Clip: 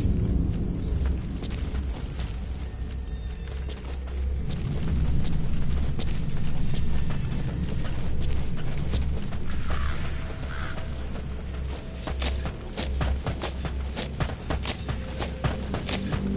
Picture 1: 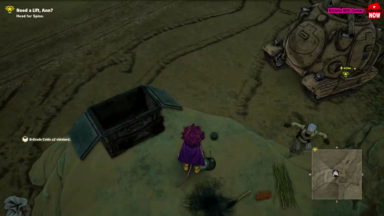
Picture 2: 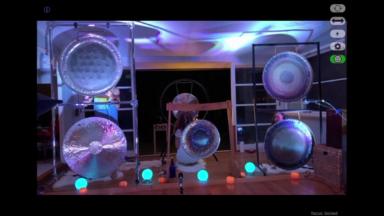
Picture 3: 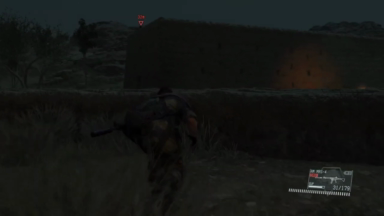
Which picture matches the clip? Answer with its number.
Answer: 3